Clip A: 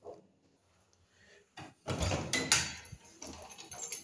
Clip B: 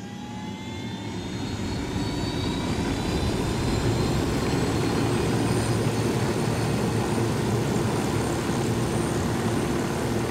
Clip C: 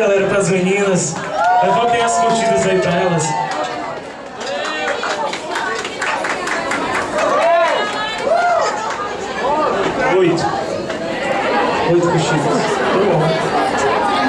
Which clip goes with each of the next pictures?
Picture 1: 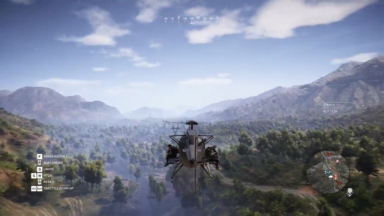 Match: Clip B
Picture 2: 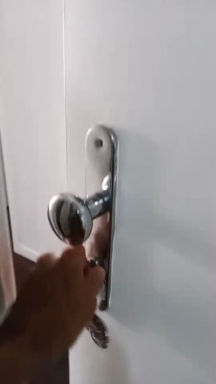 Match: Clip A